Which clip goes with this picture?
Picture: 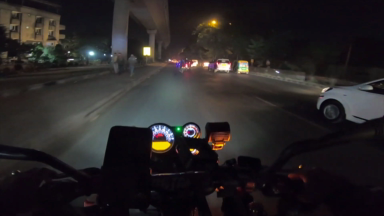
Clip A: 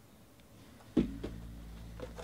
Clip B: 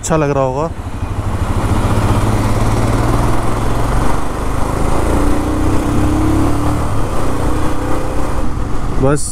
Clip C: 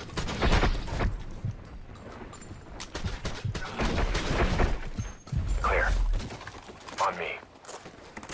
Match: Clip B